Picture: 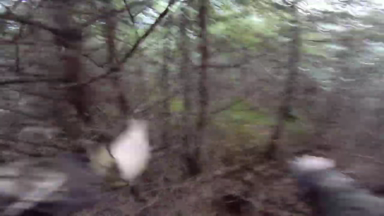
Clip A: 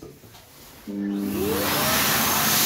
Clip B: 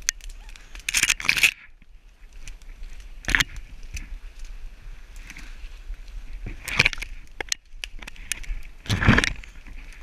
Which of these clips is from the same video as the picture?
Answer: B